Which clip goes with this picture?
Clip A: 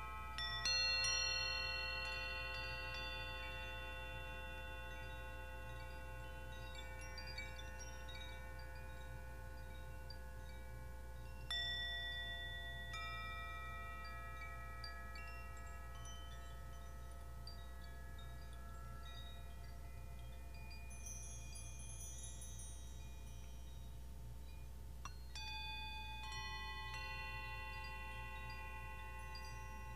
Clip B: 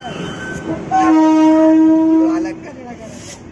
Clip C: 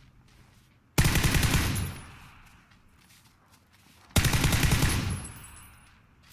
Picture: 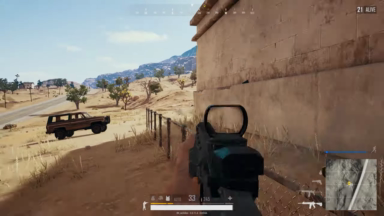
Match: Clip C